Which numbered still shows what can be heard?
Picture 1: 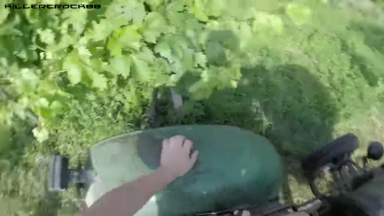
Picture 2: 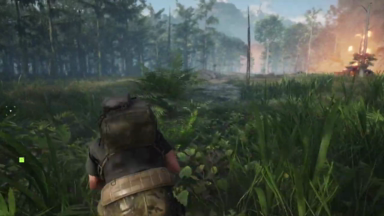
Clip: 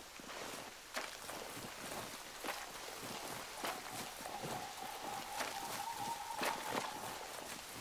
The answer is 2